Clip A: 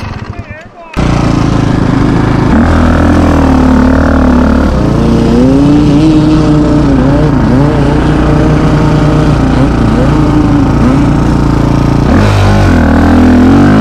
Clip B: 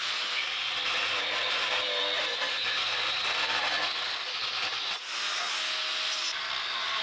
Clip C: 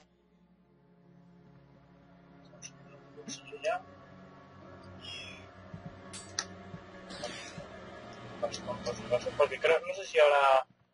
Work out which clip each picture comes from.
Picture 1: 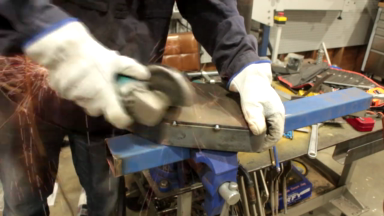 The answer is B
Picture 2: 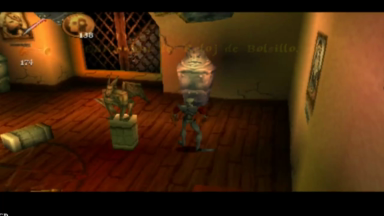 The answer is C